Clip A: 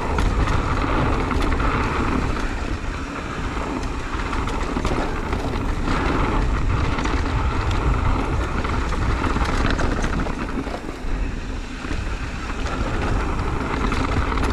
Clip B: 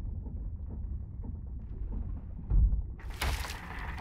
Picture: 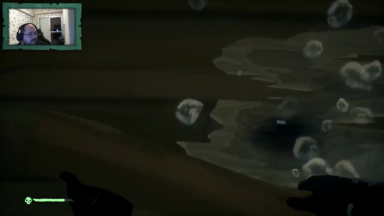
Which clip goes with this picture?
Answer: B